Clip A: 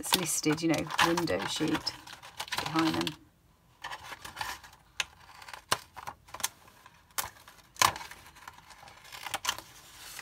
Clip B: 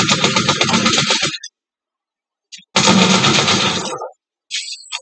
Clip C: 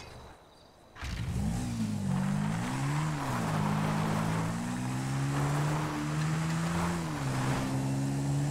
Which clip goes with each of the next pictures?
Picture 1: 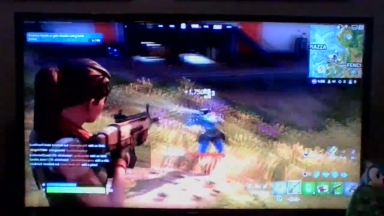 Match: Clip B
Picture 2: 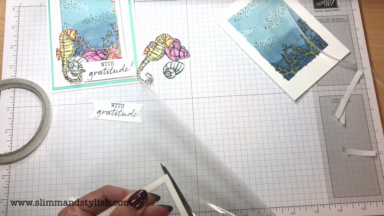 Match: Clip A